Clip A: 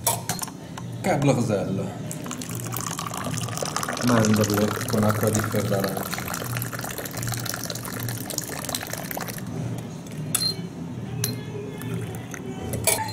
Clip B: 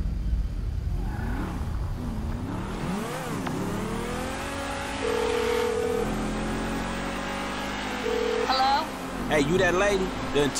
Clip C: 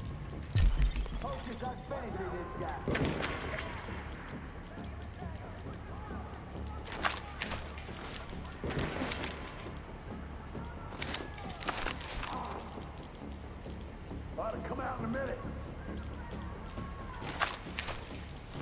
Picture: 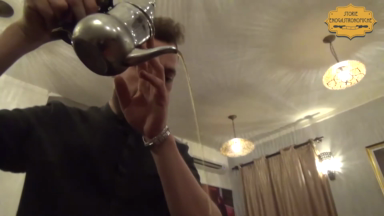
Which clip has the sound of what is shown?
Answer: A